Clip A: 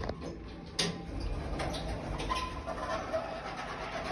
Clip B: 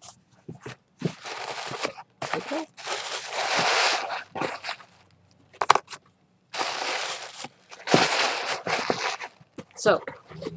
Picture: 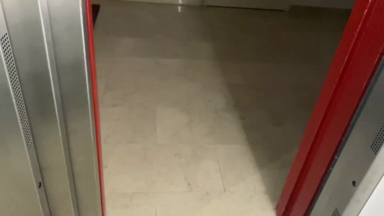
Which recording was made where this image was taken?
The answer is A